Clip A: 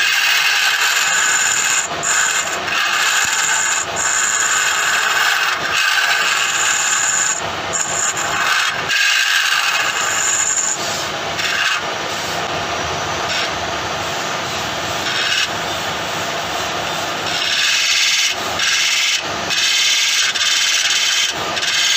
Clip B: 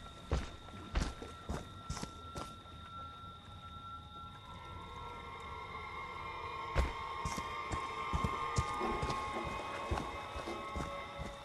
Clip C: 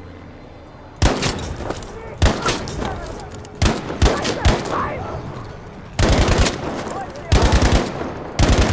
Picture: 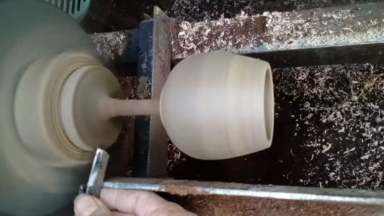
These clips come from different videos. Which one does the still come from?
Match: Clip A